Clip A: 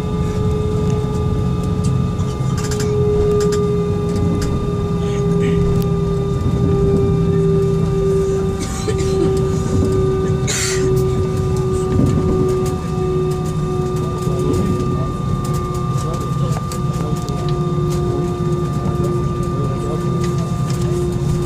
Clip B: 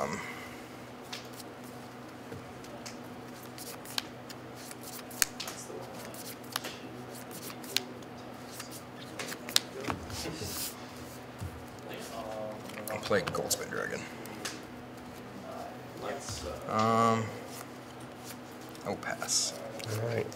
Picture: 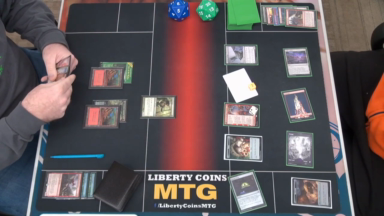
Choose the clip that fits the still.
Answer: B